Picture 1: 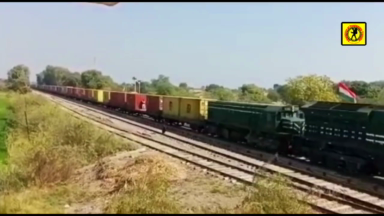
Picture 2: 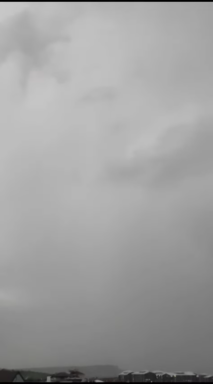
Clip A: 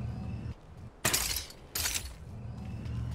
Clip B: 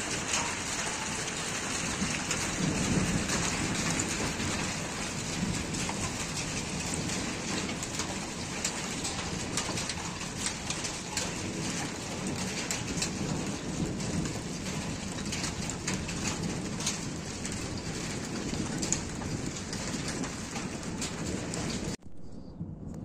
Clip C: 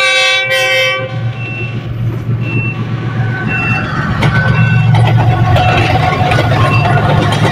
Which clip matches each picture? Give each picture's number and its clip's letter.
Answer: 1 C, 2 B